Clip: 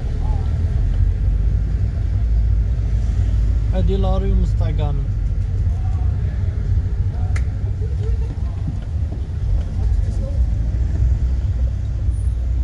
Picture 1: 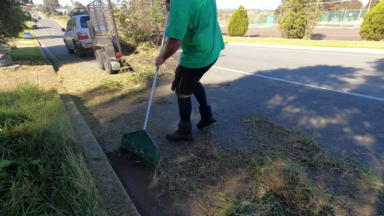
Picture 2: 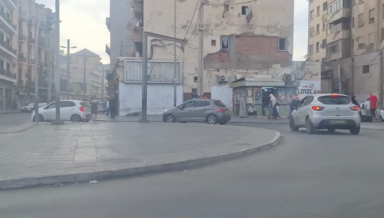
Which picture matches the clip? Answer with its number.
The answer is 2